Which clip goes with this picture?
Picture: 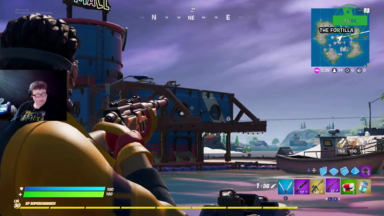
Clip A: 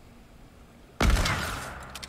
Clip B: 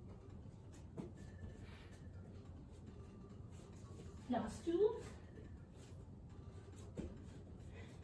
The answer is A